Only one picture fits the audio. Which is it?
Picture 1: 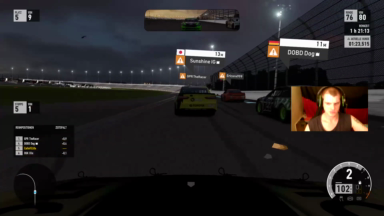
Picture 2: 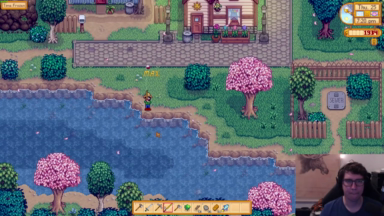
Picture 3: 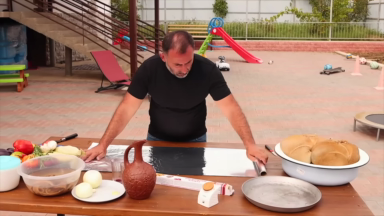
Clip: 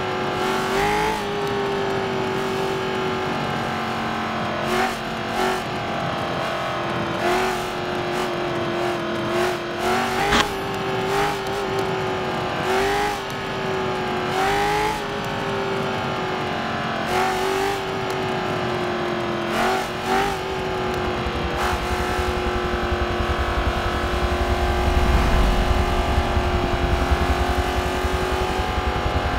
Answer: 1